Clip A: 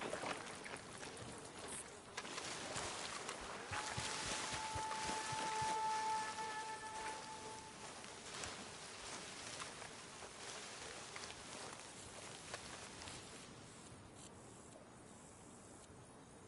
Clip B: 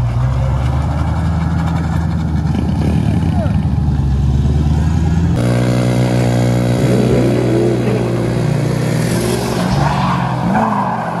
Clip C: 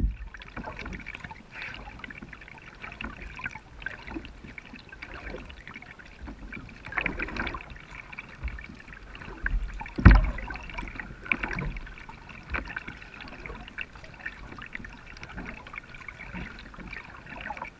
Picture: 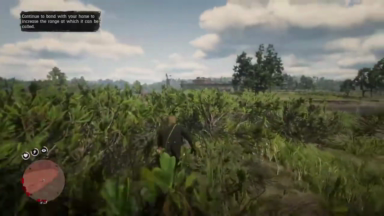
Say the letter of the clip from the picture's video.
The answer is A